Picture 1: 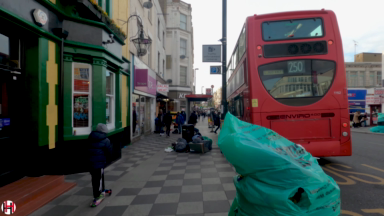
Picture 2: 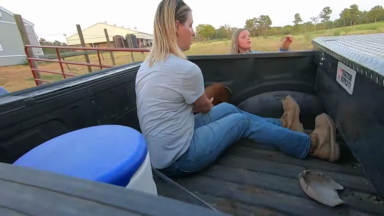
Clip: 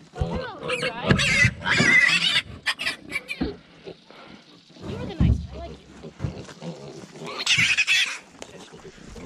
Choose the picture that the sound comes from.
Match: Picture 2